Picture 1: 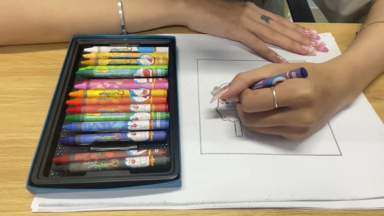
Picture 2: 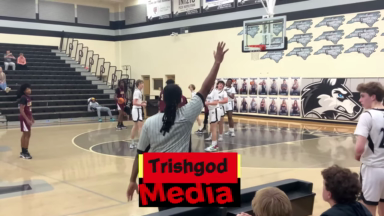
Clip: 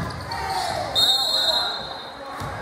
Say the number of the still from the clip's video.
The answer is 2